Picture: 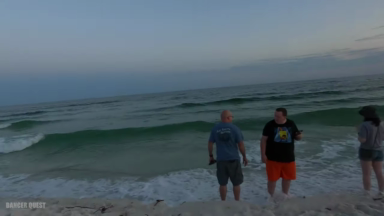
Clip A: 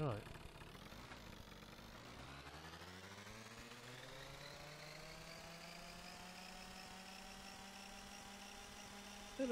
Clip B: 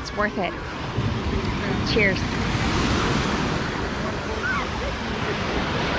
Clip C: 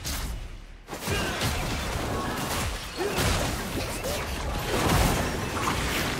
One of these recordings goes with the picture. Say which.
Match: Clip B